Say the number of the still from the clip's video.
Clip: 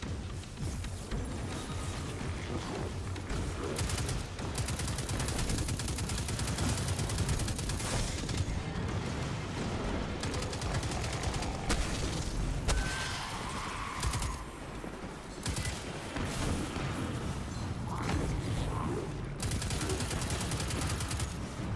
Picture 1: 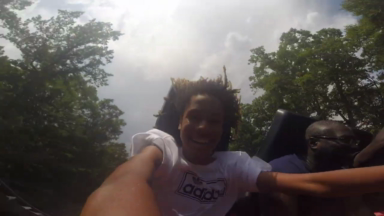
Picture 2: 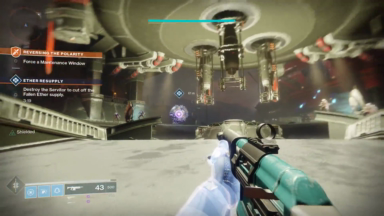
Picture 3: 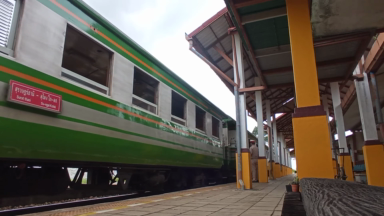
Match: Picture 2